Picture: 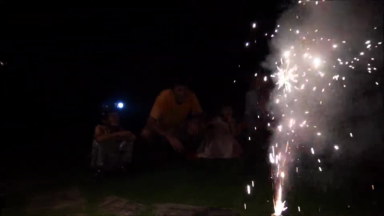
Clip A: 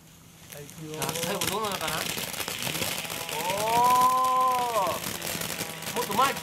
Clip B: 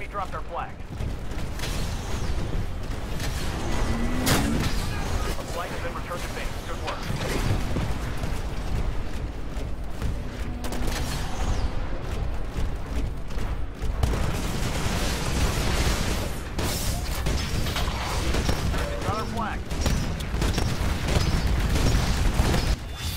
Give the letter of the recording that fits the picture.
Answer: A